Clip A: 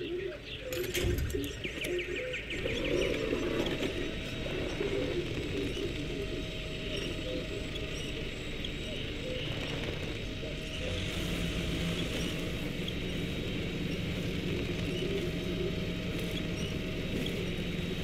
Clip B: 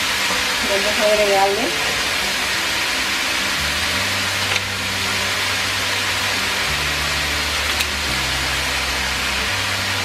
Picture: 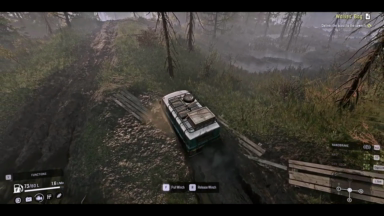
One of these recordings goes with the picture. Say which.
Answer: A